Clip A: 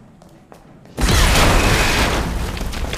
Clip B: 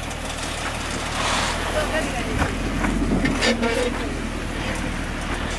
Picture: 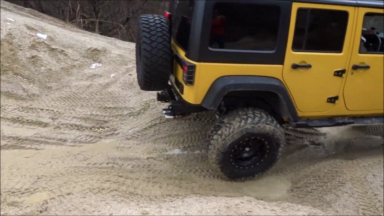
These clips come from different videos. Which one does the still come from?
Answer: B